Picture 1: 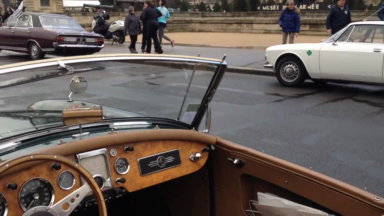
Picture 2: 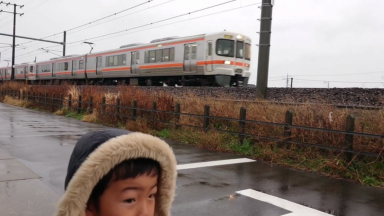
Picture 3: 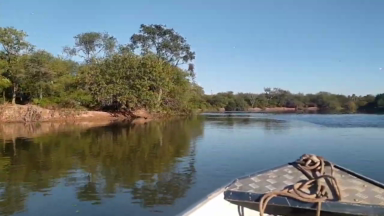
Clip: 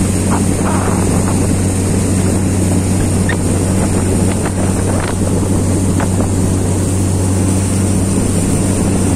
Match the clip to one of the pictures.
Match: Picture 3